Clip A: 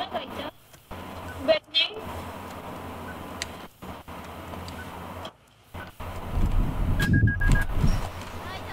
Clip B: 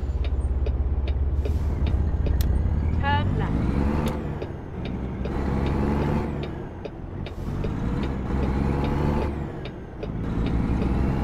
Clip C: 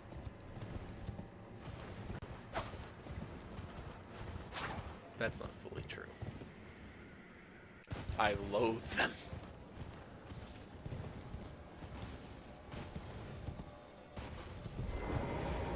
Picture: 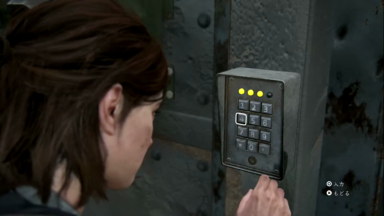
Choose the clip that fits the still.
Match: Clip A